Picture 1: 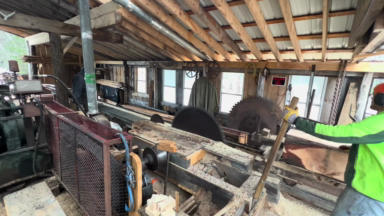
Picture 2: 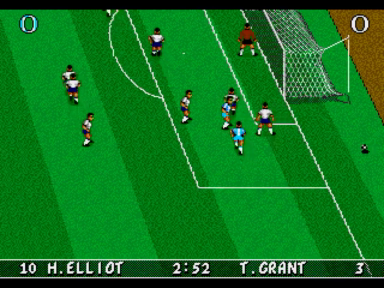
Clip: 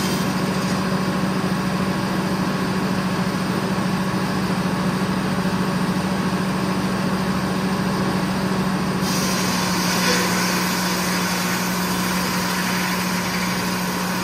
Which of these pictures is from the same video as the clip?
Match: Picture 1